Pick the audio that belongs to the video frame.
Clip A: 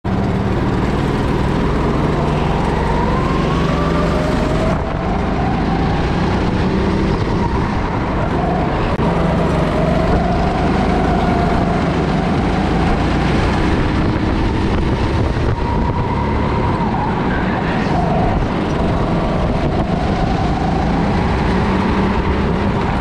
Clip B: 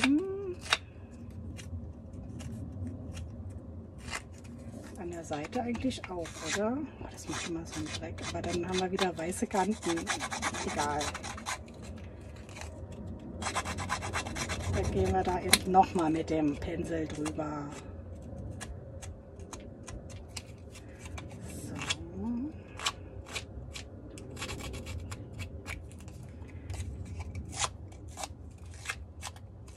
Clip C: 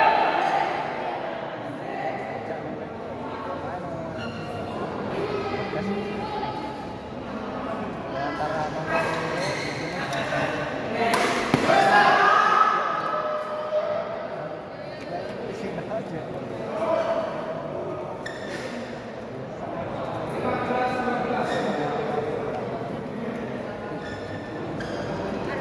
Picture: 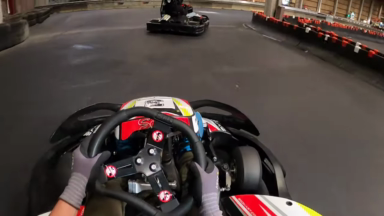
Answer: A